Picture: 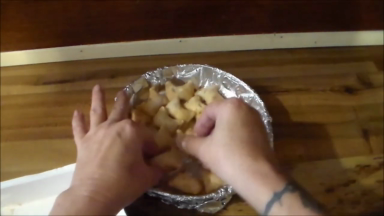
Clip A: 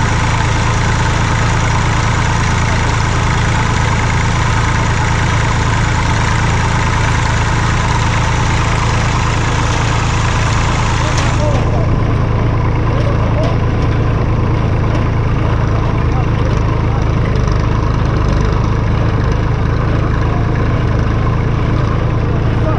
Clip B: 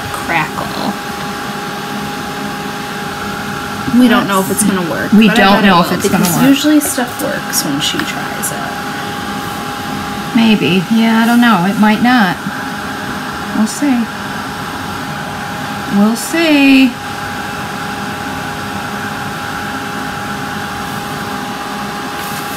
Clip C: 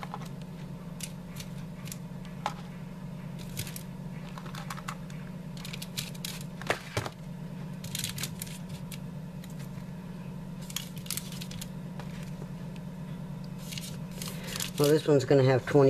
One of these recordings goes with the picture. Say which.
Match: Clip C